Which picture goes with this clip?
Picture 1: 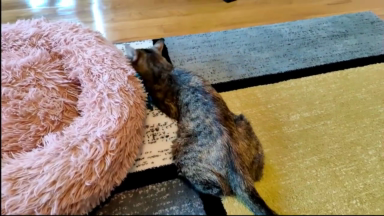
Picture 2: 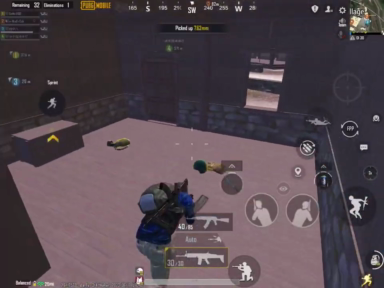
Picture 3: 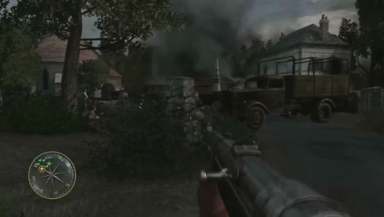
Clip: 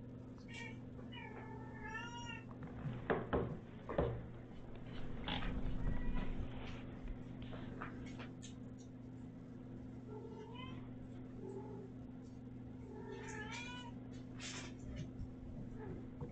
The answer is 1